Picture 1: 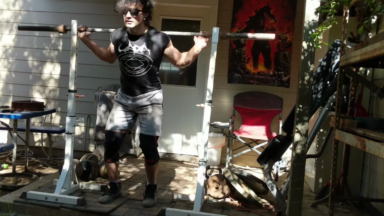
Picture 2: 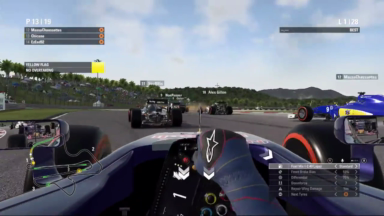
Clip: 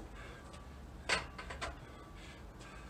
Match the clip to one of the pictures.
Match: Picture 1